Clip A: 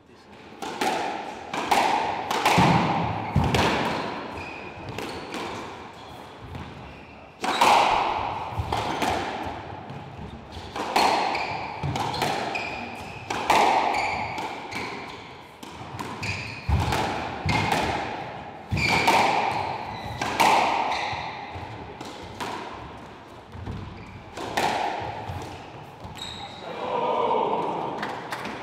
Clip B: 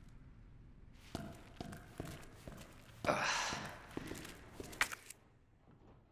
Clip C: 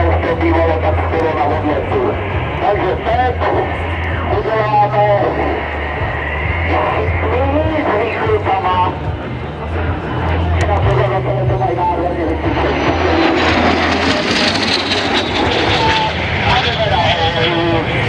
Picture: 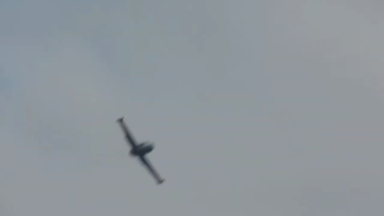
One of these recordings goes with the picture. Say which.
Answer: C